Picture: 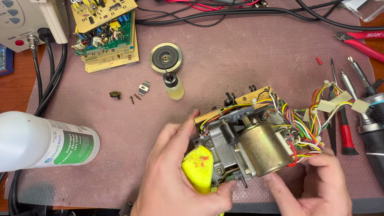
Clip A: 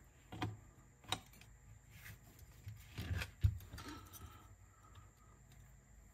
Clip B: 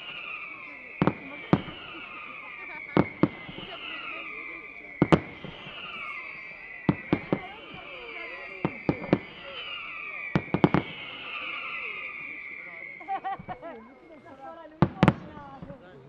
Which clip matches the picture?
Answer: A